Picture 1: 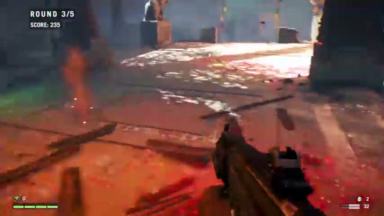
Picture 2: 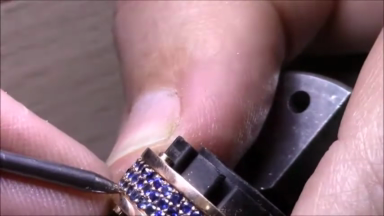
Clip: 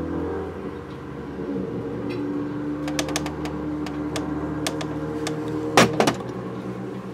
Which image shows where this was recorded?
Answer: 2